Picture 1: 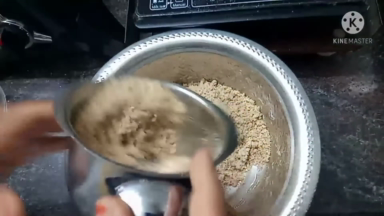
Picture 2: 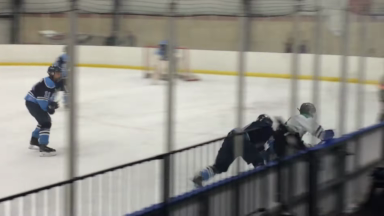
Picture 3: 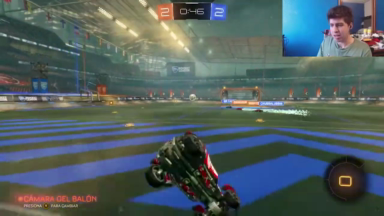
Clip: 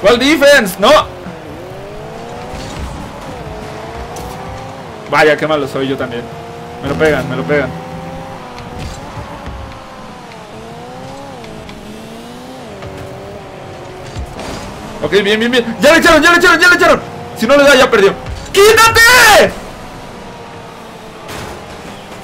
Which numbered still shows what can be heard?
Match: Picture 3